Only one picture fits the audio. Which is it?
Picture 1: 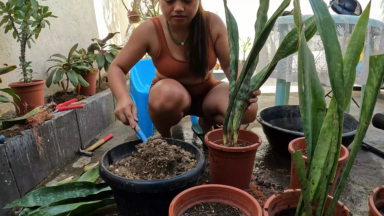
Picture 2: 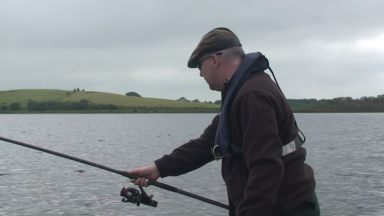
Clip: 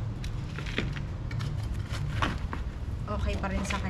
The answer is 1